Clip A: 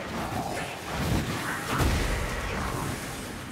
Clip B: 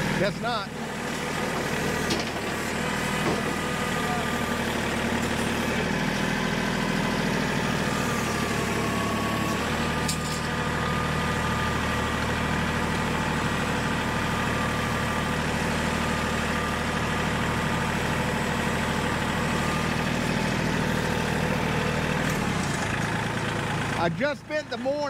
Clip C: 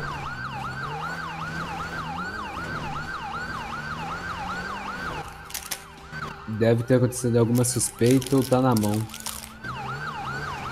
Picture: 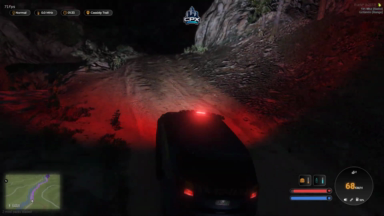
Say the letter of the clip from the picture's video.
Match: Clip C